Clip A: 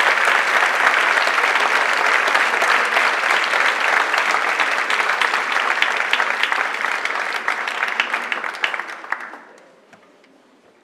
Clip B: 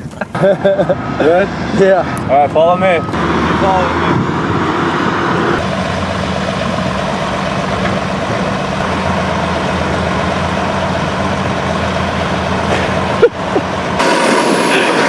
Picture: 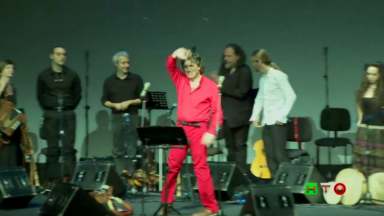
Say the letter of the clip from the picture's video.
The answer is A